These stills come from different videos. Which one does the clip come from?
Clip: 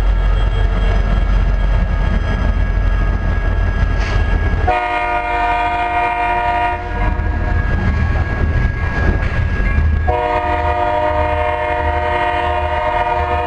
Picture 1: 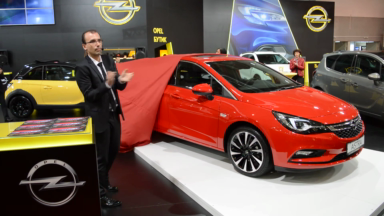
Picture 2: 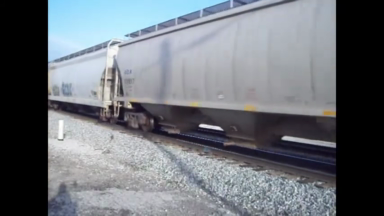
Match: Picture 2